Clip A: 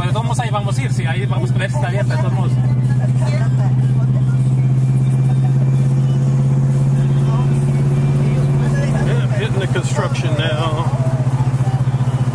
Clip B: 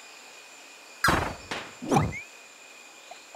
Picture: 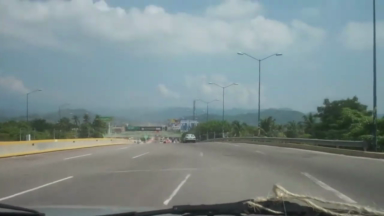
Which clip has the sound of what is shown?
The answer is A